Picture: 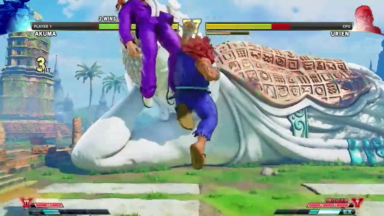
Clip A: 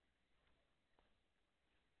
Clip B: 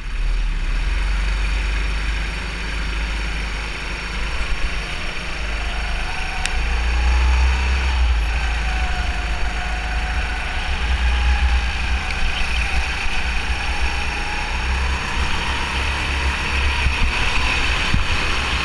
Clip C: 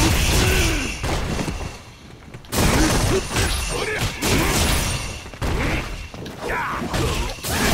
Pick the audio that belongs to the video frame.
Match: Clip C